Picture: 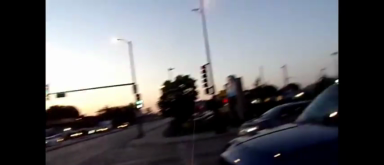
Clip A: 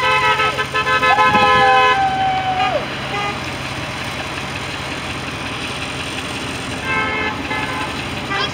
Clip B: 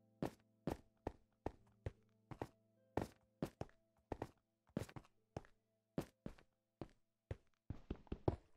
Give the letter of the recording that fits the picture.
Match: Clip A